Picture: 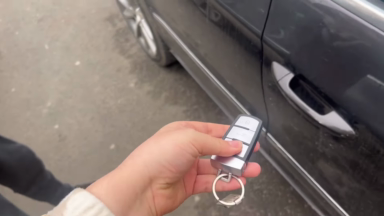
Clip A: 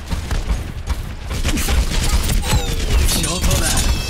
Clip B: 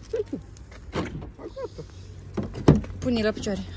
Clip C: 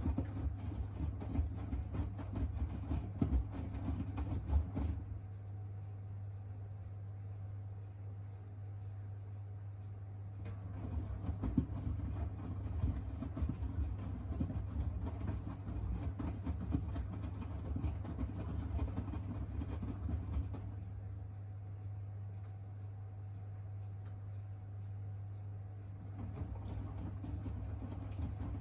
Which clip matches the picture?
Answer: B